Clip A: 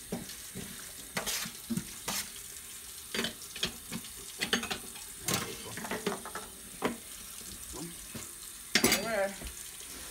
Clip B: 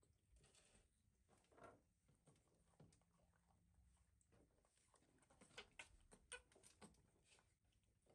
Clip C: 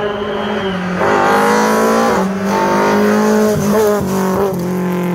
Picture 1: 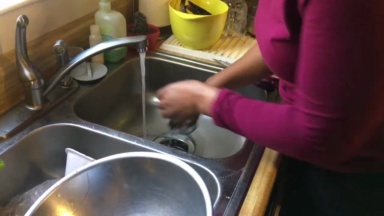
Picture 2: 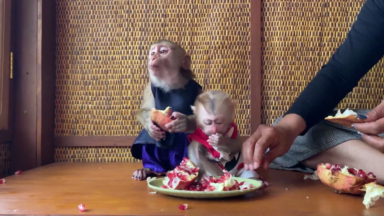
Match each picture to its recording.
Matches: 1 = A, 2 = B